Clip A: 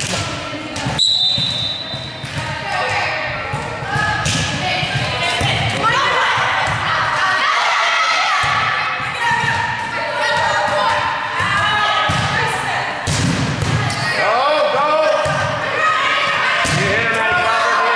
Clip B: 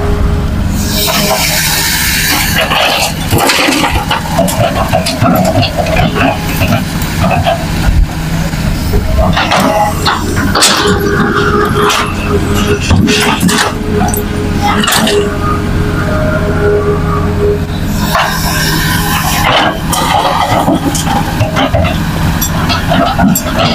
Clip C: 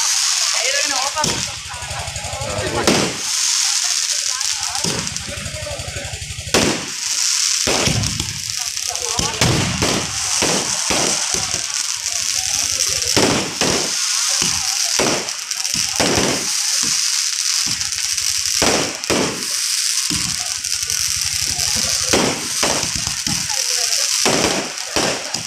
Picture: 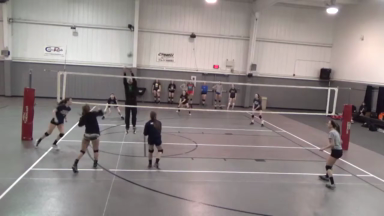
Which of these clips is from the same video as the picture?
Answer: A